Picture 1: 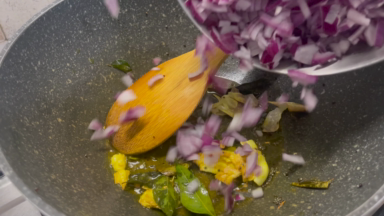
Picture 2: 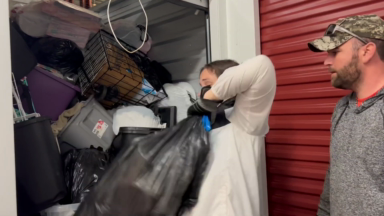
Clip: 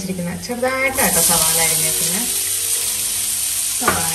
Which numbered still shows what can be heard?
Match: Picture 1